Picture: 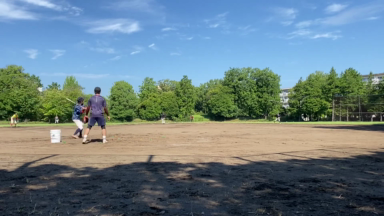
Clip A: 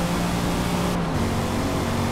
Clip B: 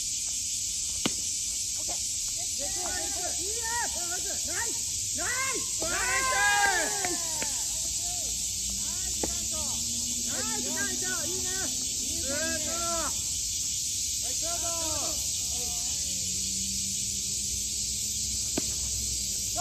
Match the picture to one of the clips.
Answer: B